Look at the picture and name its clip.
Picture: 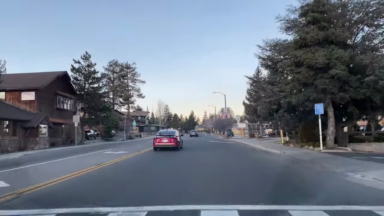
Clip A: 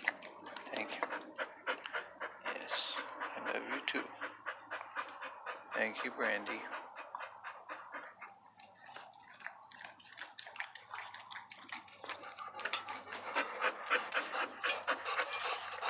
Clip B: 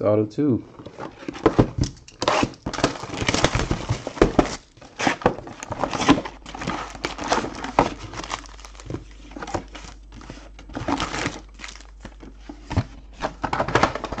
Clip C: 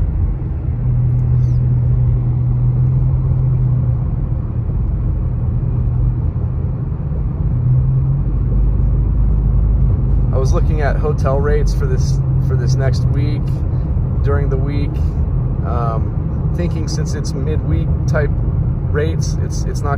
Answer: C